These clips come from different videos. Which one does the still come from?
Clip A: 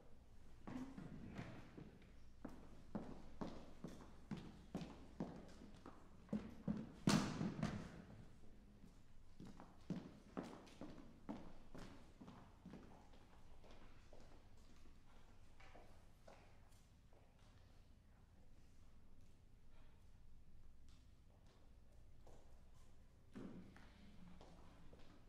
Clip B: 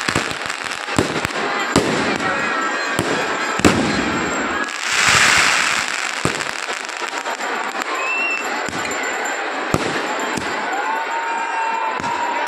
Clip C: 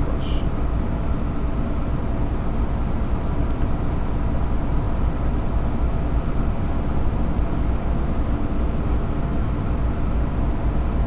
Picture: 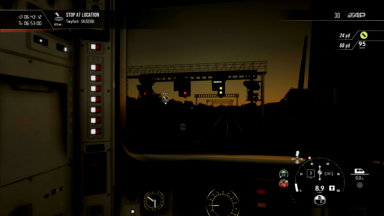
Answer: C